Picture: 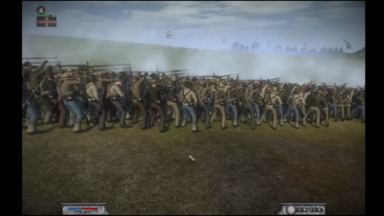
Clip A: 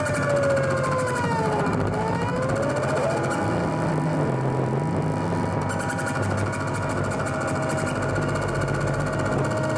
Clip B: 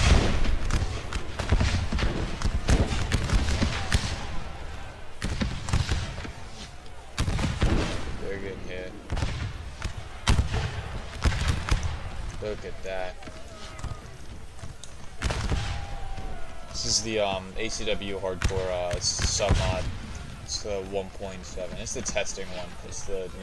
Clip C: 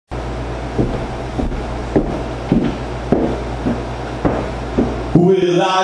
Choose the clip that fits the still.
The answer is B